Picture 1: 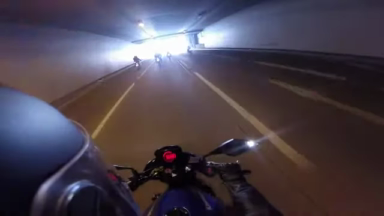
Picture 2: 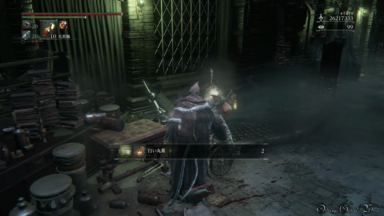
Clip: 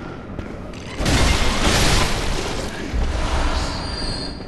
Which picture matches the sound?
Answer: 2